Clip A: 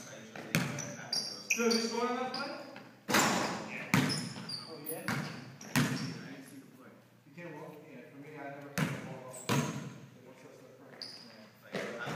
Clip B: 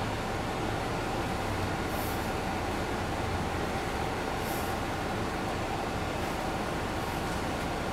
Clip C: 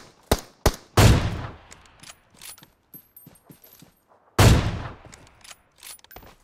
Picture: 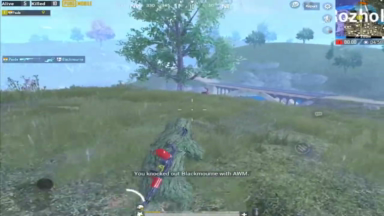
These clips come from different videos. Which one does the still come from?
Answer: C